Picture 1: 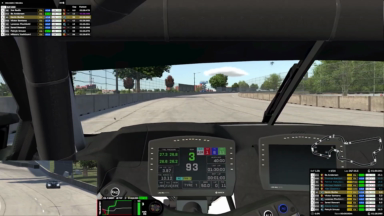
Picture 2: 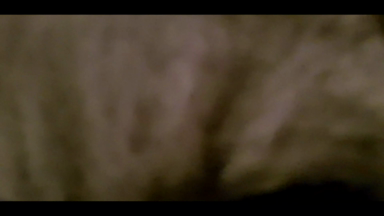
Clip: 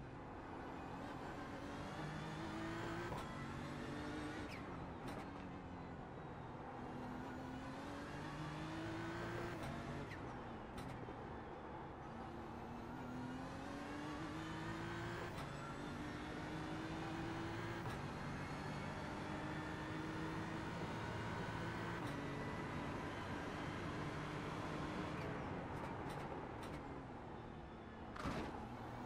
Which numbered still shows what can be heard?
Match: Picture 1